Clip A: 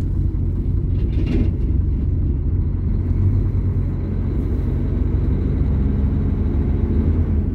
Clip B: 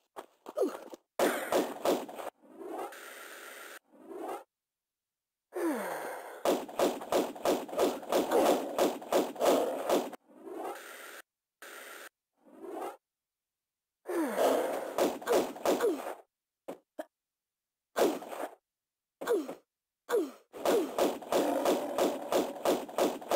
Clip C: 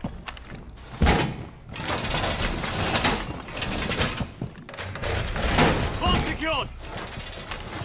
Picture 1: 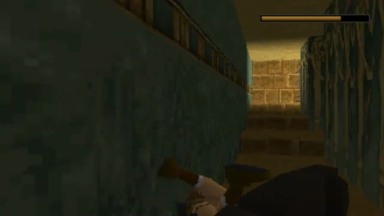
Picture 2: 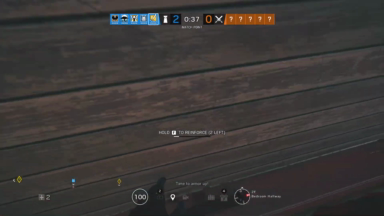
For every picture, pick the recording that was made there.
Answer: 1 B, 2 C